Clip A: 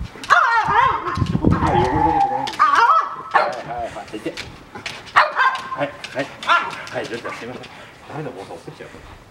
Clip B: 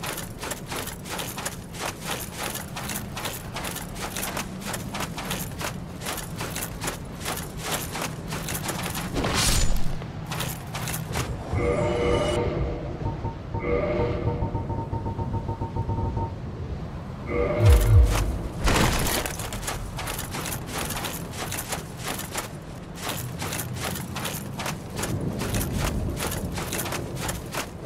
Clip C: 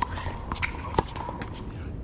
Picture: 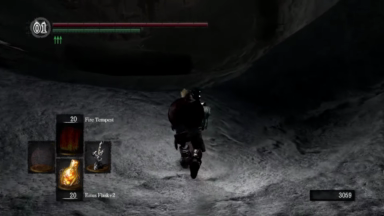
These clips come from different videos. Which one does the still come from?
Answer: B